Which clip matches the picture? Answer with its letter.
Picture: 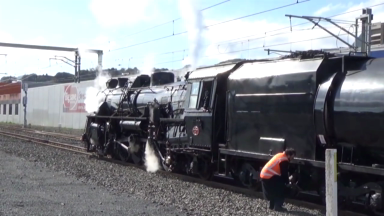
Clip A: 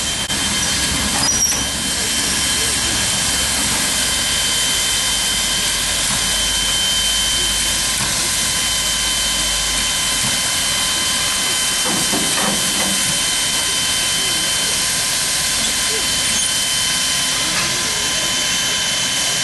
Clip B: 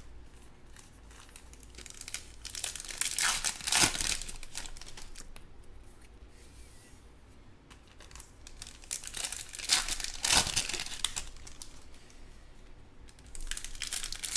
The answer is A